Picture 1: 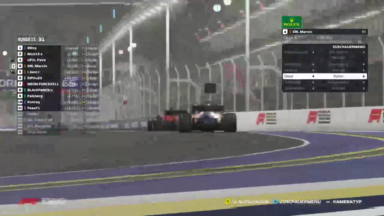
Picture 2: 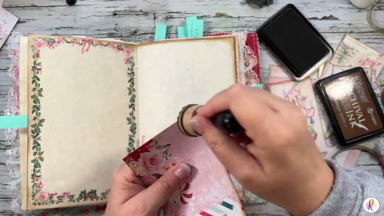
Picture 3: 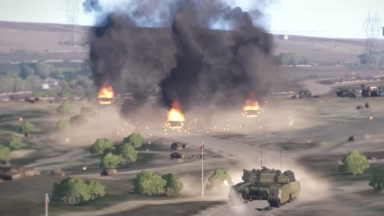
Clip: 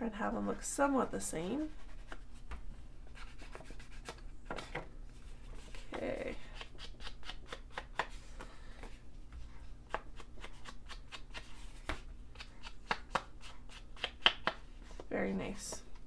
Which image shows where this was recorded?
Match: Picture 2